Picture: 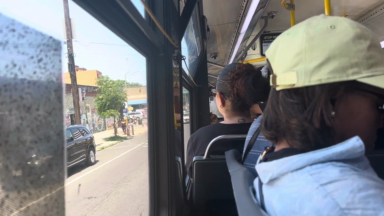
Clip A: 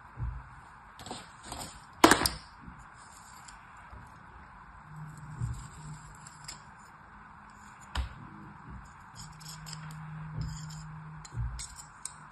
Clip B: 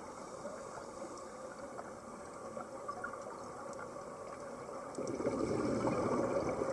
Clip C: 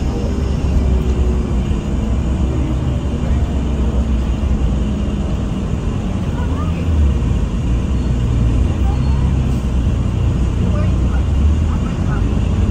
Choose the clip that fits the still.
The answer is C